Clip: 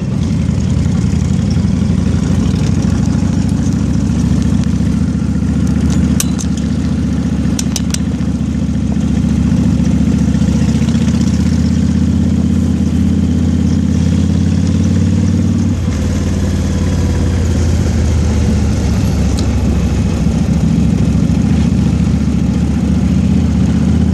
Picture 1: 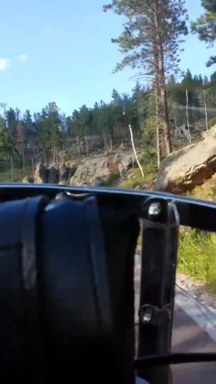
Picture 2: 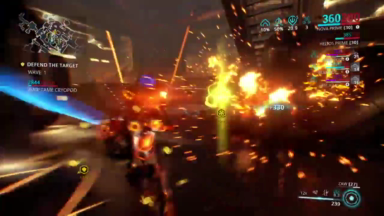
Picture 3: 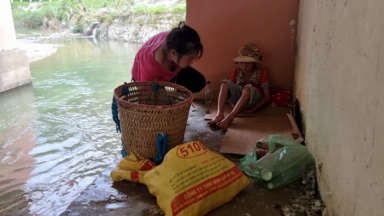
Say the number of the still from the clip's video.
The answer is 1